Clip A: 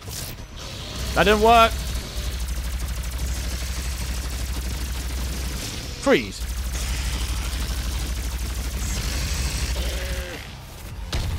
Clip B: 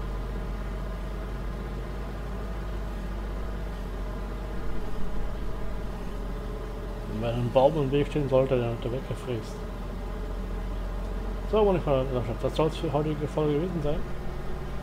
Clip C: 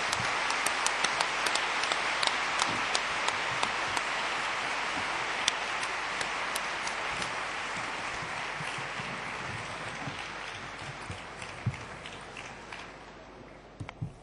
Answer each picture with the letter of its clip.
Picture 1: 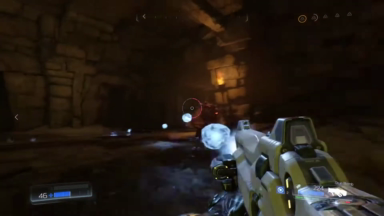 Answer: A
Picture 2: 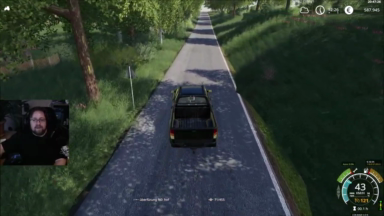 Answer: B